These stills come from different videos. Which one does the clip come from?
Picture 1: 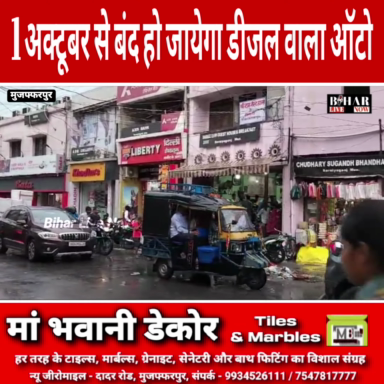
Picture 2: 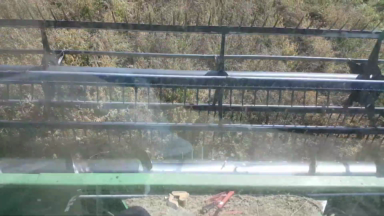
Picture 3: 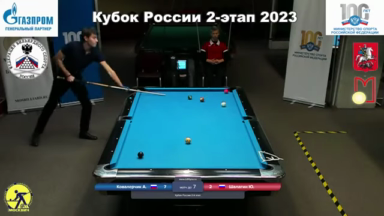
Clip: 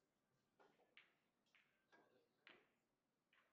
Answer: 3